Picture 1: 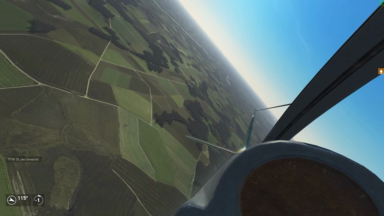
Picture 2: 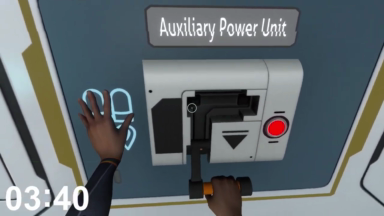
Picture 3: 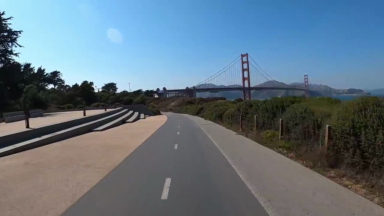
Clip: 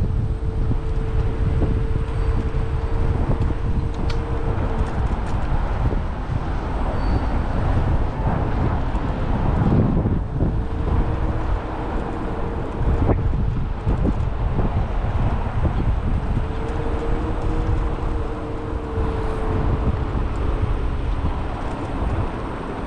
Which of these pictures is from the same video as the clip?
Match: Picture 3